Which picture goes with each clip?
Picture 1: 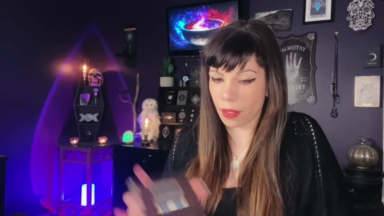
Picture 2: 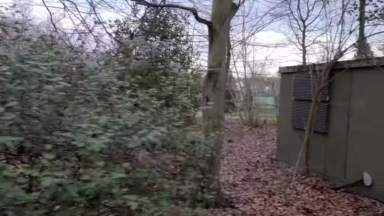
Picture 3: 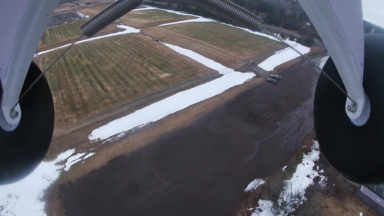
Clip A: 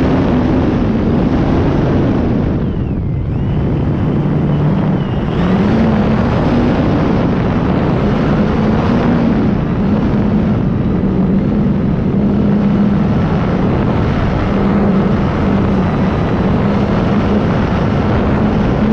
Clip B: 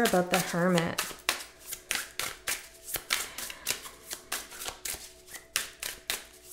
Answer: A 3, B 1